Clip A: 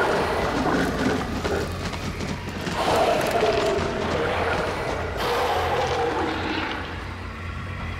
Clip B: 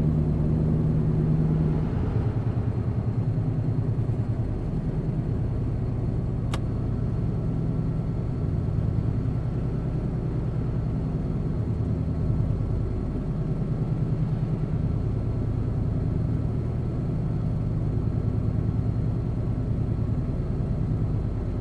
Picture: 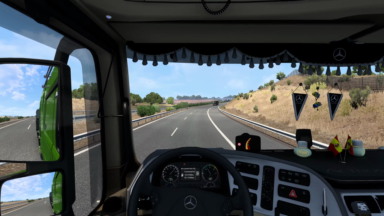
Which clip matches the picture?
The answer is B